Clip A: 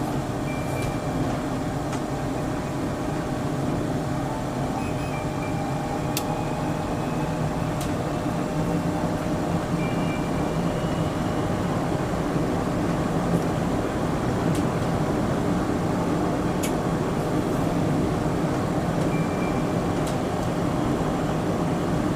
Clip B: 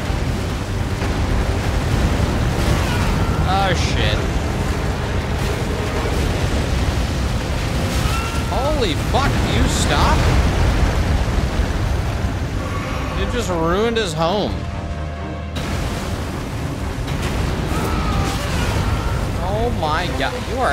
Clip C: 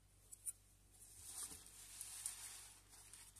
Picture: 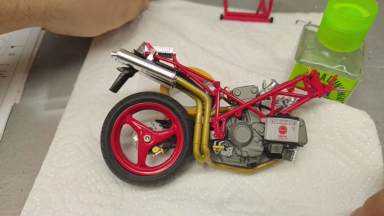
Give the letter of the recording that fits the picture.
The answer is C